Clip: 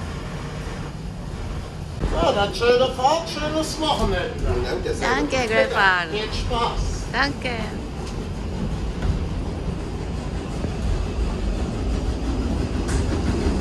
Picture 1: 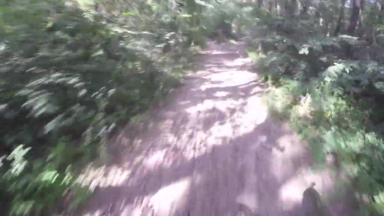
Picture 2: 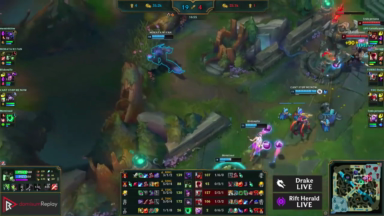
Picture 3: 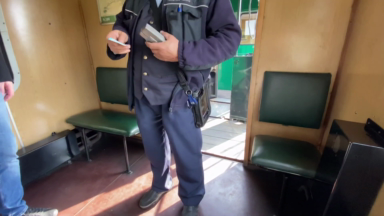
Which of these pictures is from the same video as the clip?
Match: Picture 3